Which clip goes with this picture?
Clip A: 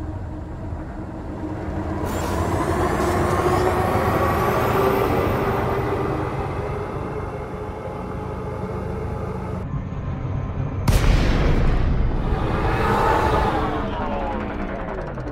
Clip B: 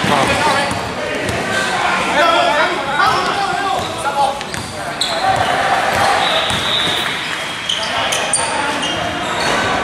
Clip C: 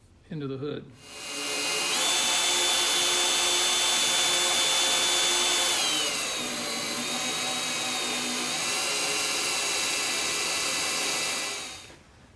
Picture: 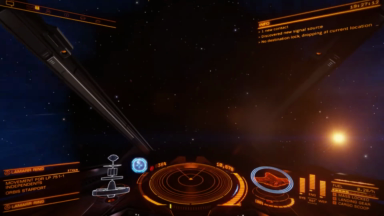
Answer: A